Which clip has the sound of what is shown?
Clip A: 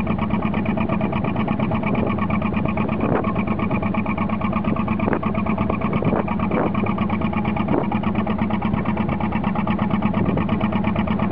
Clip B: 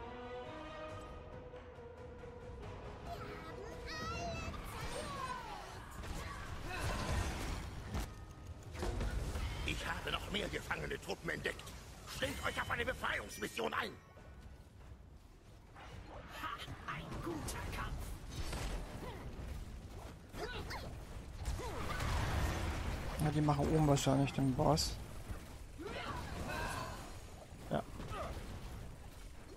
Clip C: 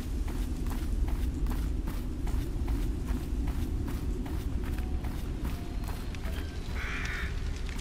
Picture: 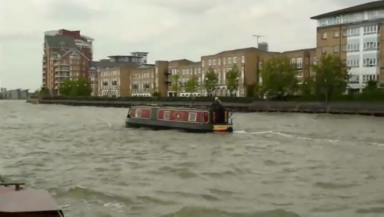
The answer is A